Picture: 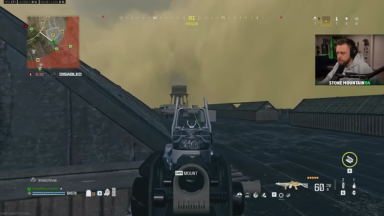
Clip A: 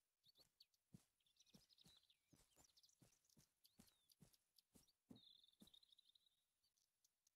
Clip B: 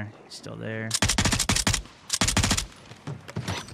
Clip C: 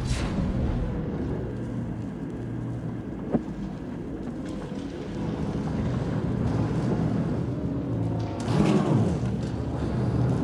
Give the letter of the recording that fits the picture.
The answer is B